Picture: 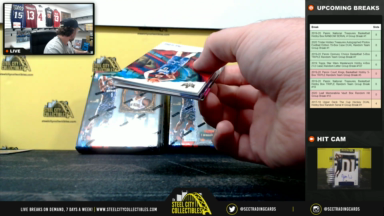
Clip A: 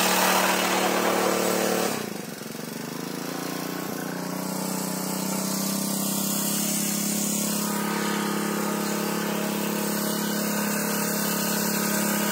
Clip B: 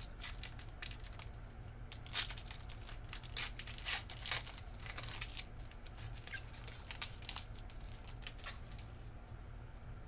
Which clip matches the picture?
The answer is B